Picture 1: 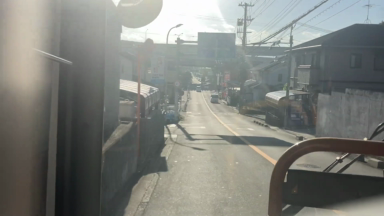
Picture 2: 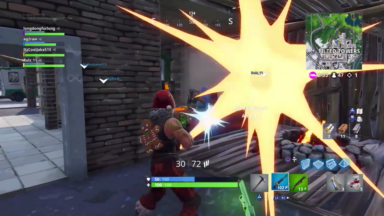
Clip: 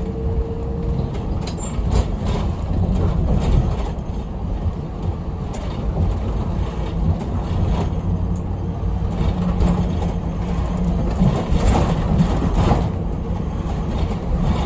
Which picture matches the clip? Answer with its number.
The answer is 1